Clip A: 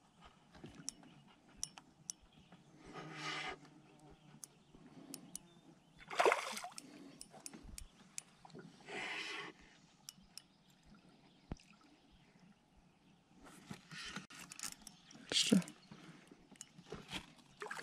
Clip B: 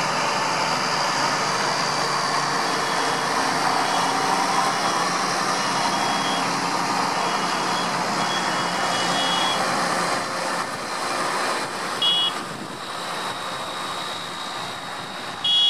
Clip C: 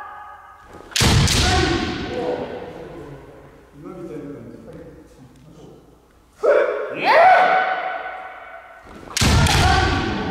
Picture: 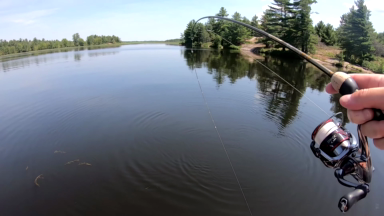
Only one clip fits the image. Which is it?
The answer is A